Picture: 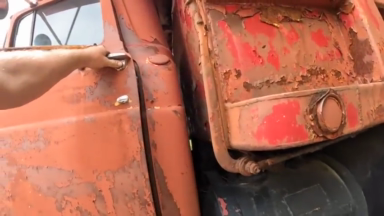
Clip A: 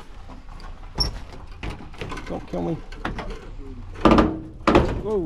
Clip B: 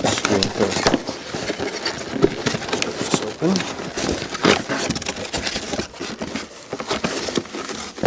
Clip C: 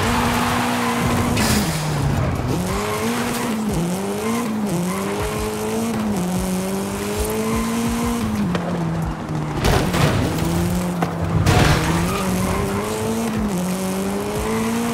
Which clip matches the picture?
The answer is A